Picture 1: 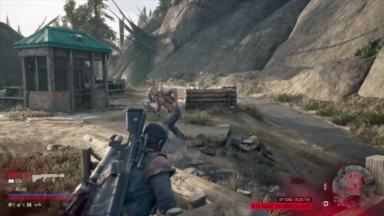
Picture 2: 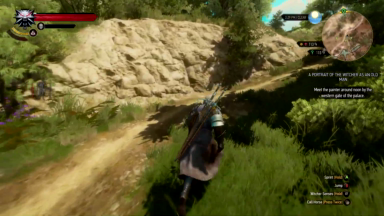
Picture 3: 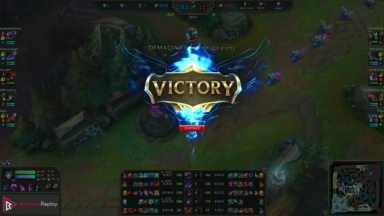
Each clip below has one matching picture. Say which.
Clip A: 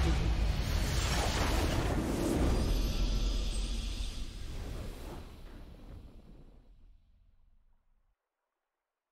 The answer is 3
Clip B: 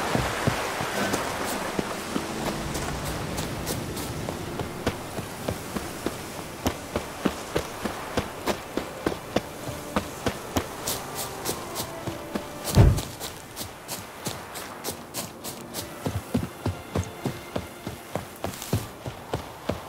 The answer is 2